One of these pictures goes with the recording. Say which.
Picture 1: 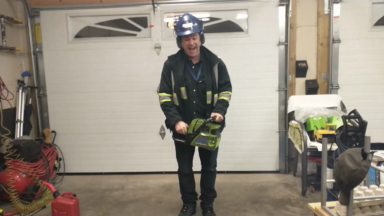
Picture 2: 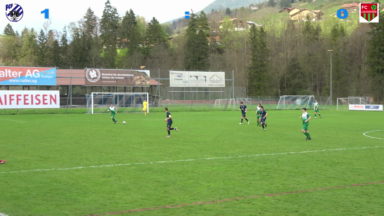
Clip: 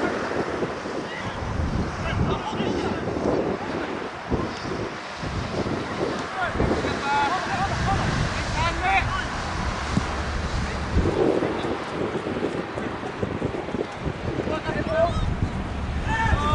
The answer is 2